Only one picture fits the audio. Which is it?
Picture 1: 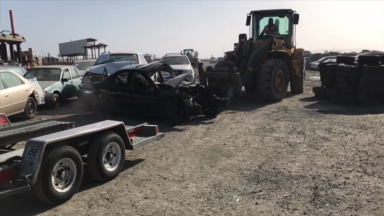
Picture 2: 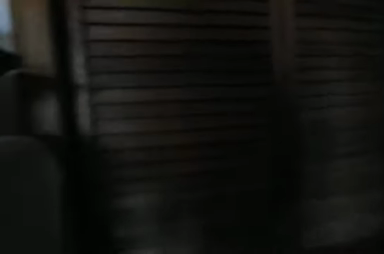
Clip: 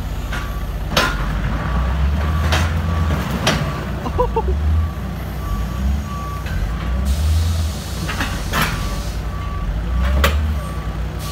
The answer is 1